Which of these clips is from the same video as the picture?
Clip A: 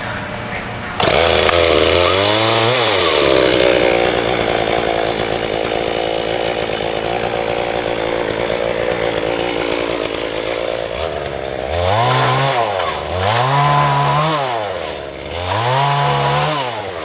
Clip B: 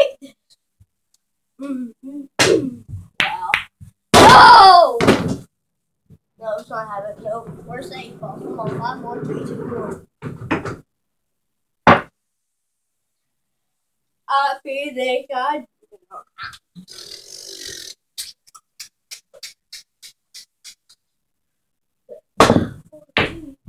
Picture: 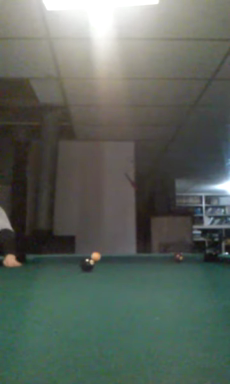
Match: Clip B